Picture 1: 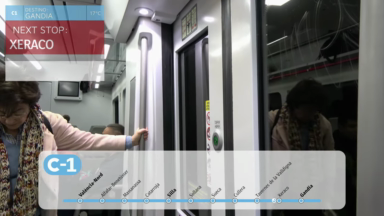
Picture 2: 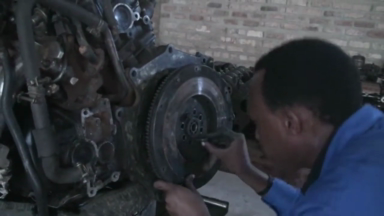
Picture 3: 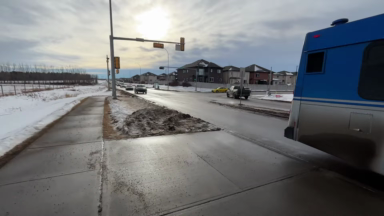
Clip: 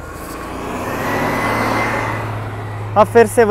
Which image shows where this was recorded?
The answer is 3